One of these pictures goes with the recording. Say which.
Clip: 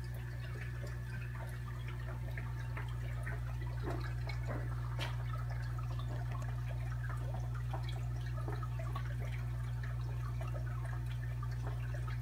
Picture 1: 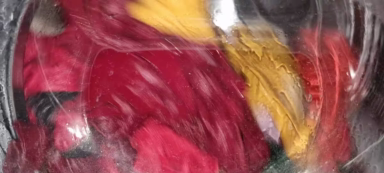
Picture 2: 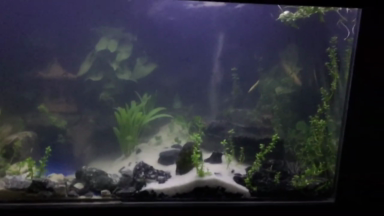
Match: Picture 2